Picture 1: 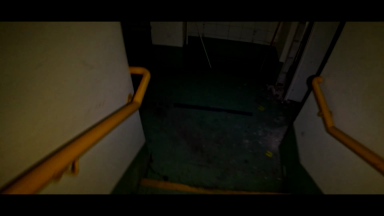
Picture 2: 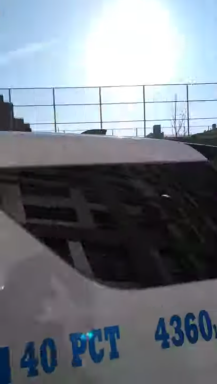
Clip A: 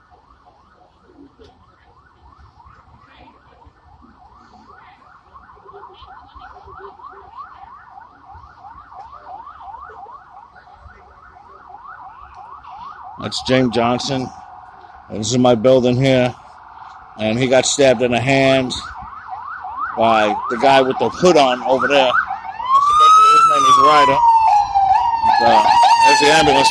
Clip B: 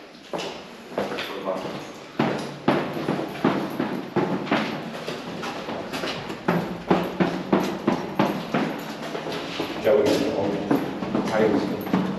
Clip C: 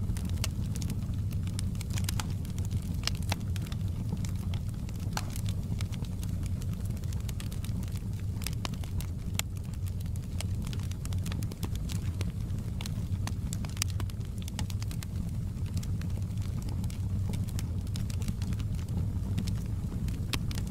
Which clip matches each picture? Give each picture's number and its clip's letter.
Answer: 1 B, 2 A